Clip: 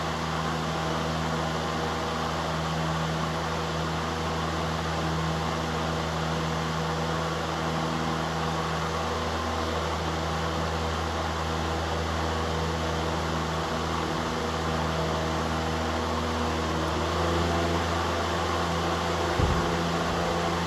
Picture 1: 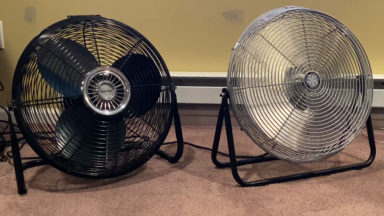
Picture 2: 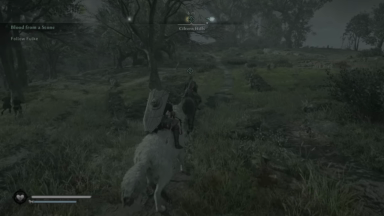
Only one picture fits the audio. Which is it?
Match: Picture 1